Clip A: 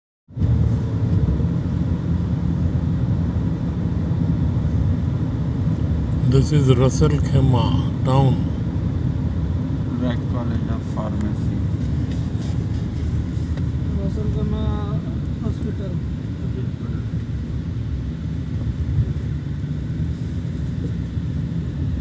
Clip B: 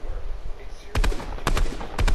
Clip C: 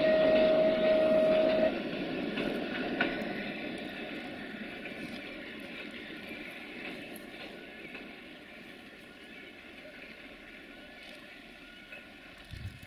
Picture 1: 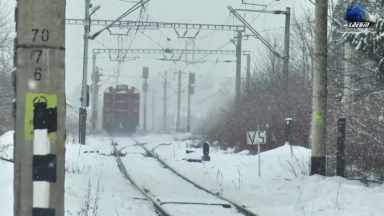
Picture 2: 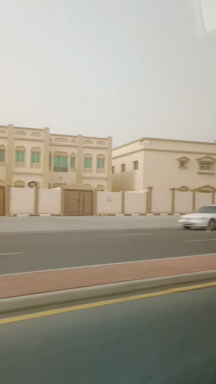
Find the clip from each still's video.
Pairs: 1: C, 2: A